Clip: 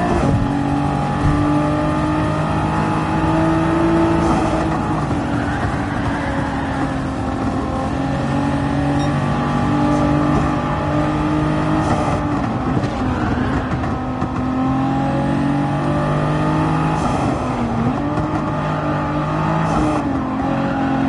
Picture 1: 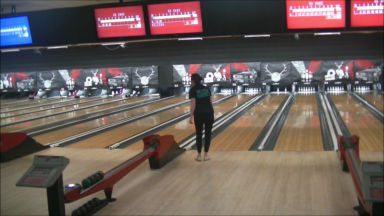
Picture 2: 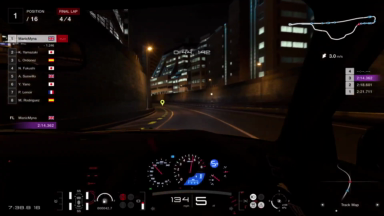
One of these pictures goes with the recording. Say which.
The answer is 2